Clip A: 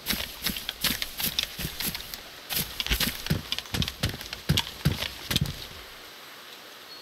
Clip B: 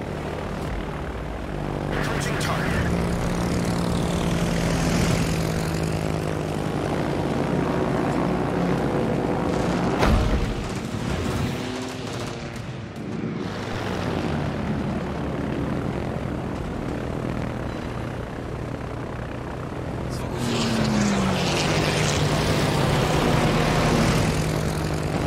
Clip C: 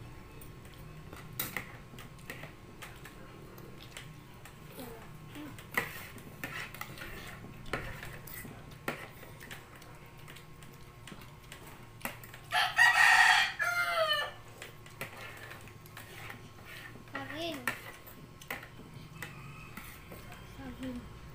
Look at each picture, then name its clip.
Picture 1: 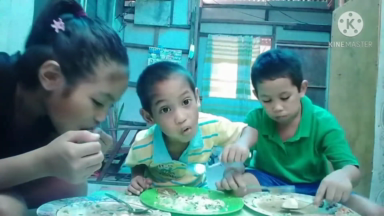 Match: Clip C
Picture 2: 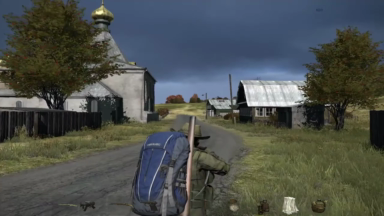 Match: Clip A